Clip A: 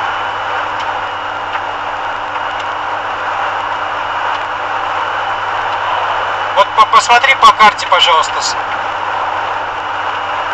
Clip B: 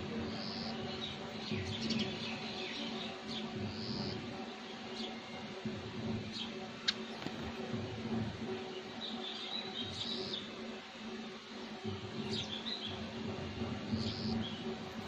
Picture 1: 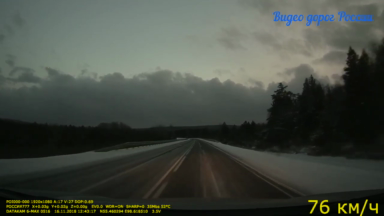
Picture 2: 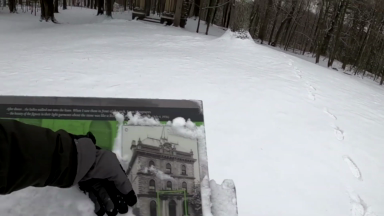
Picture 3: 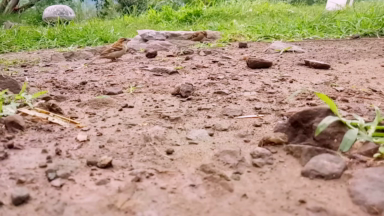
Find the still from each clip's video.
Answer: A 1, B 3